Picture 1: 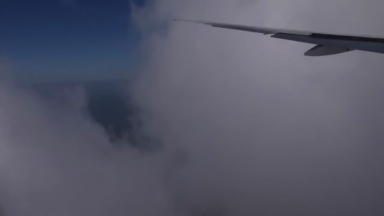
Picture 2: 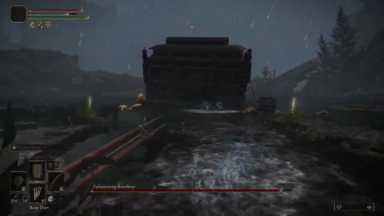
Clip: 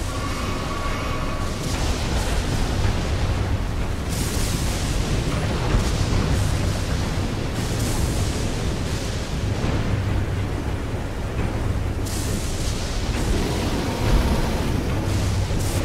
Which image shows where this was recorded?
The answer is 2